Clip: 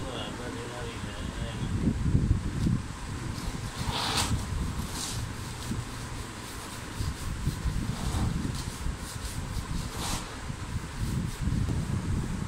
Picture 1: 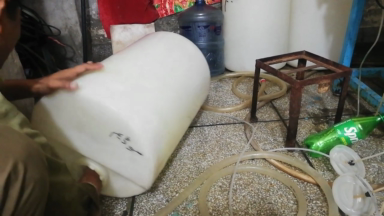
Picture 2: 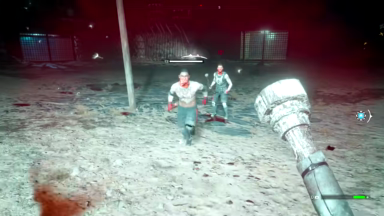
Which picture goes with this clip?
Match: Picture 1